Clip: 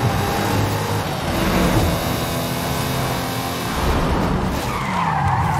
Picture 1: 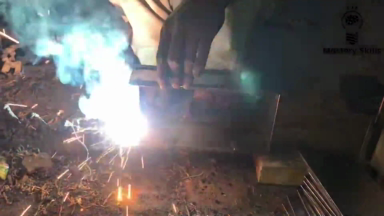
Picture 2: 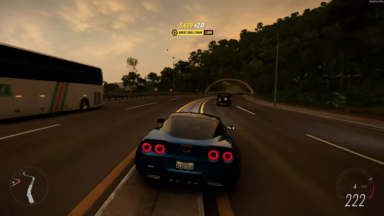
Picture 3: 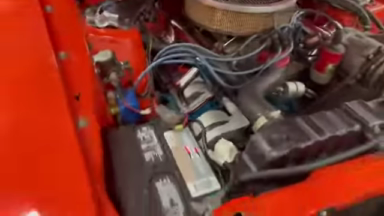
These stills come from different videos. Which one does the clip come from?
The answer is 2